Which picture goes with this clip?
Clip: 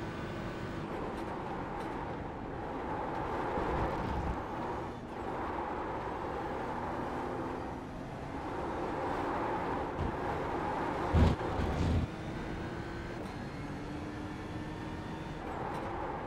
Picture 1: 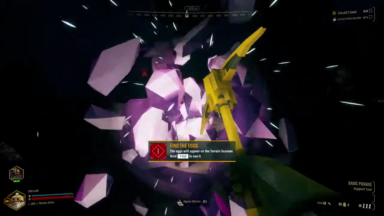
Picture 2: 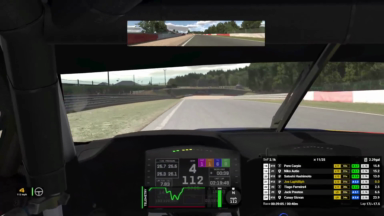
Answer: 2